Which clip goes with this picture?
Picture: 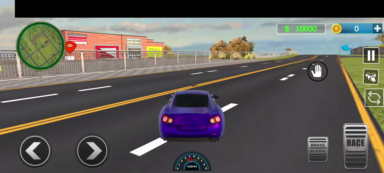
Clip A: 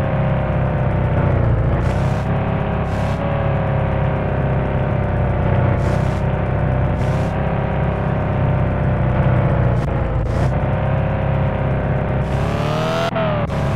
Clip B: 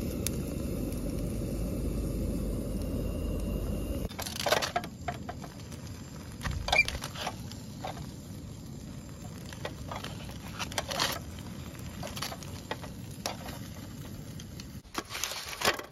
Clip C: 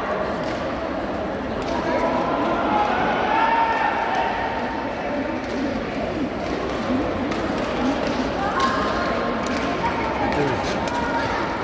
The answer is A